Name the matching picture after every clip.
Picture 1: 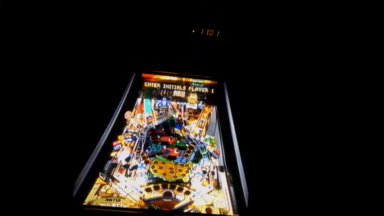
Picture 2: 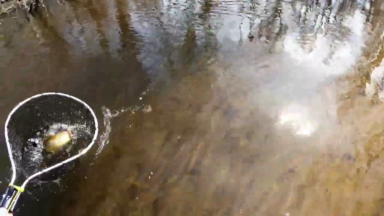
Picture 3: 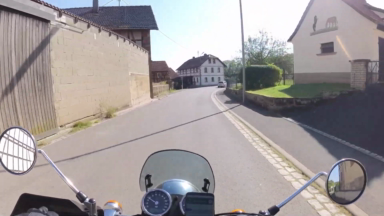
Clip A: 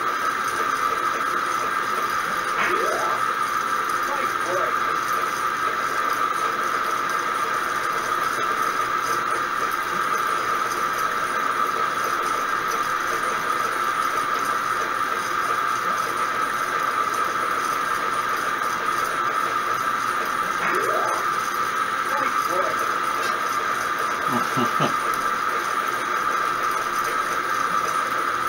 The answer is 1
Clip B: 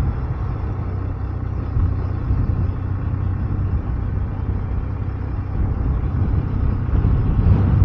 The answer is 3